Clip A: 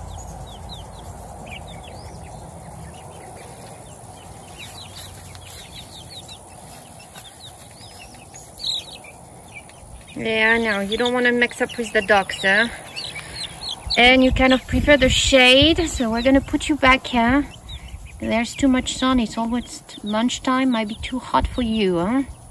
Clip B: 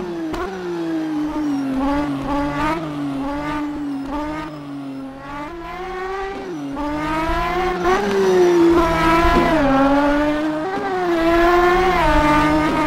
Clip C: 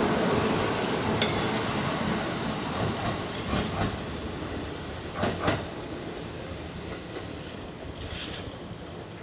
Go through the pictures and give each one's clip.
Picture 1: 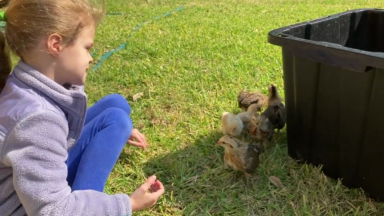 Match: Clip A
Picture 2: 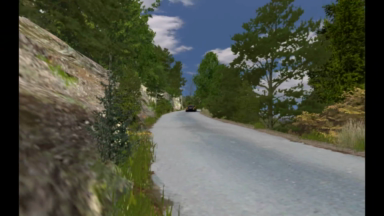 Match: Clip B